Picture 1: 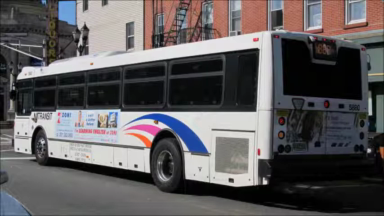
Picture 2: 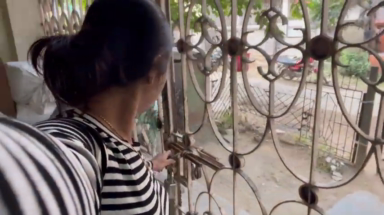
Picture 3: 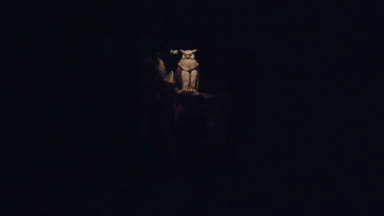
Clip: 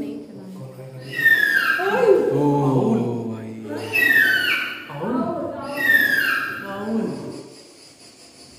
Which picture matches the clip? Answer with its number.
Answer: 3